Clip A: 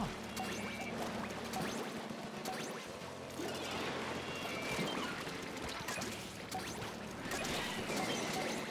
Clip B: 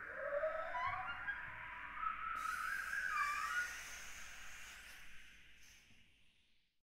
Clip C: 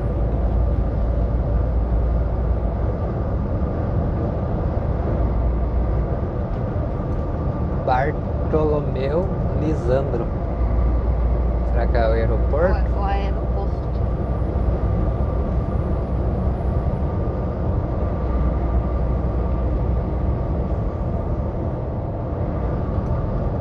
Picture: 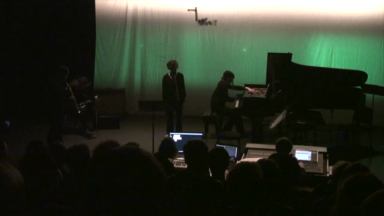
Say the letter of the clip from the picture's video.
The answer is B